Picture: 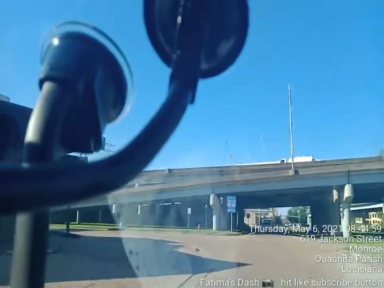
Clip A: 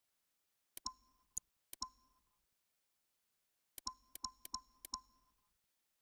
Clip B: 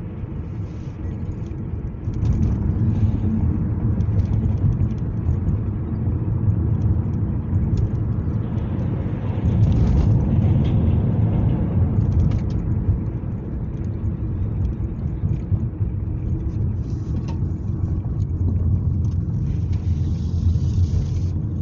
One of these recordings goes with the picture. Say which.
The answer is B